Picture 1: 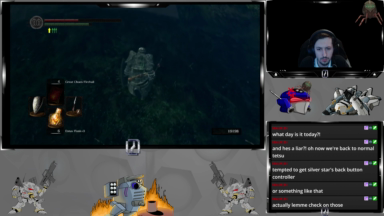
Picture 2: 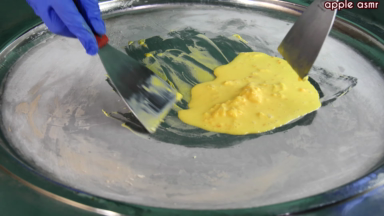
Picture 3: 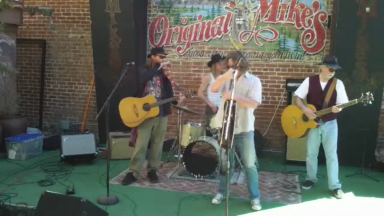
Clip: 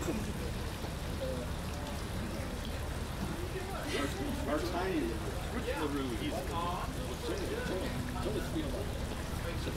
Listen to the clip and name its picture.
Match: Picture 3